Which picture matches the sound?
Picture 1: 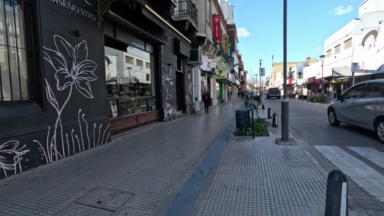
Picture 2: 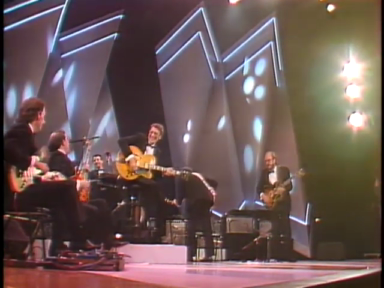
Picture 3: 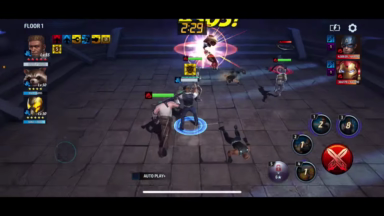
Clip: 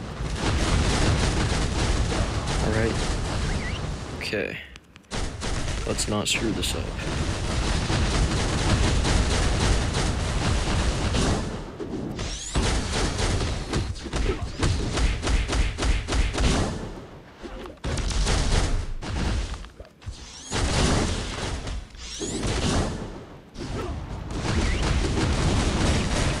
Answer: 3